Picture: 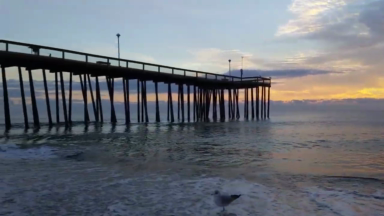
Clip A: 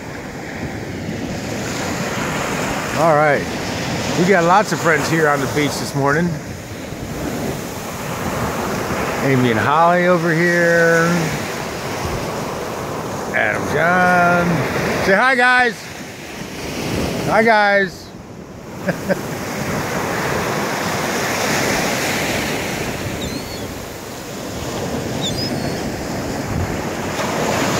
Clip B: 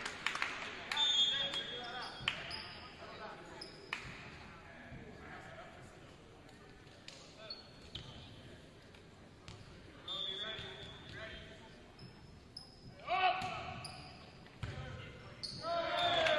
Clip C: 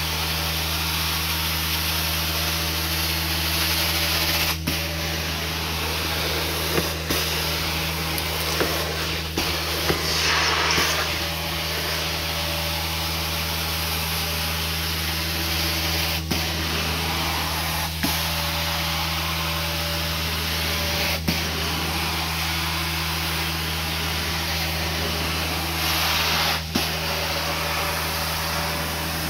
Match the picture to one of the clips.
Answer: A